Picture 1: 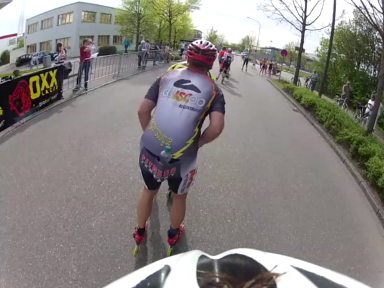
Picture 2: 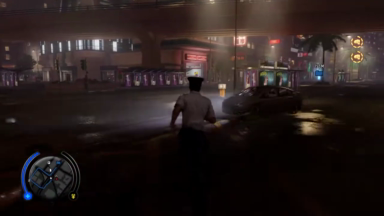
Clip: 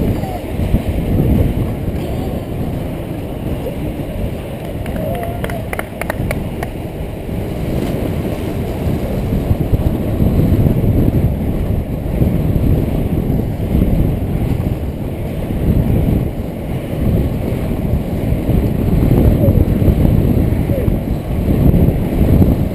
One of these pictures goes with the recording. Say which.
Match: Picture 1